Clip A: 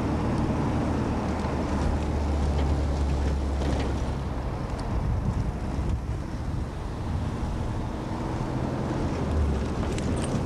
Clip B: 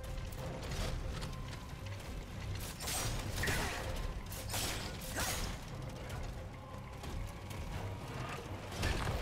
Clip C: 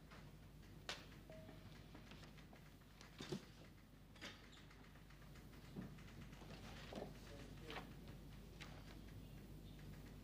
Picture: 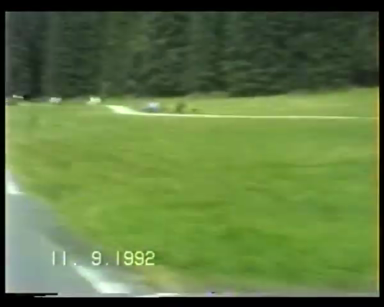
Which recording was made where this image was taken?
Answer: A